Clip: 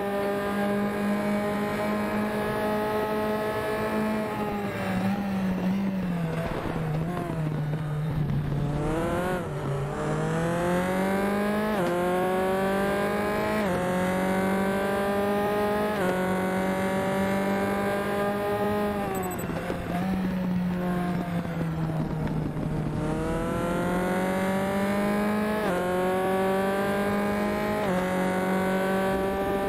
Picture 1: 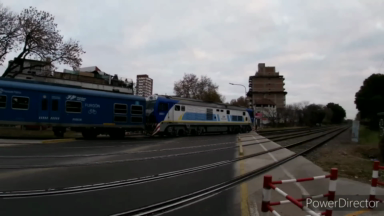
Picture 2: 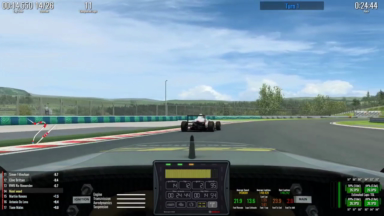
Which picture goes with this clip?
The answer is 2